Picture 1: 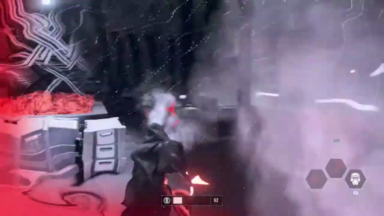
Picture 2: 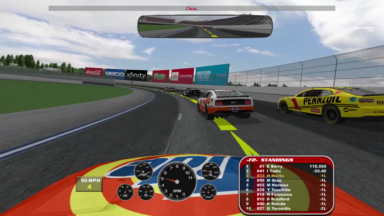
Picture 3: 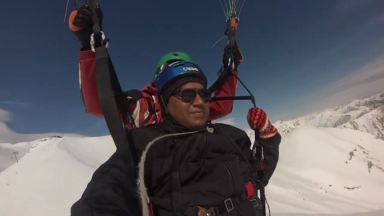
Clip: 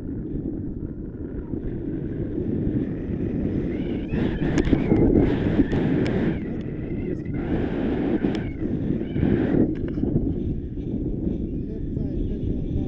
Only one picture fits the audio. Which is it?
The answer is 3